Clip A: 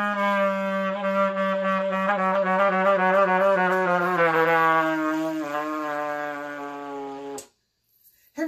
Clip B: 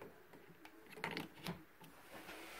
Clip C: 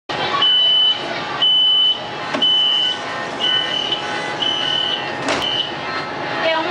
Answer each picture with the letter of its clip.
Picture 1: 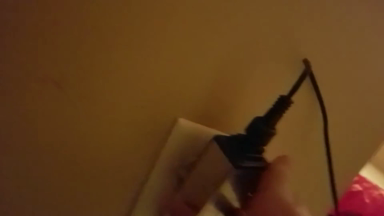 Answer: B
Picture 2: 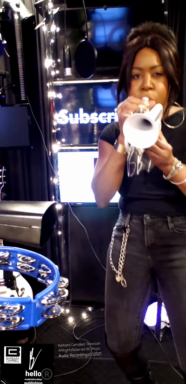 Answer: A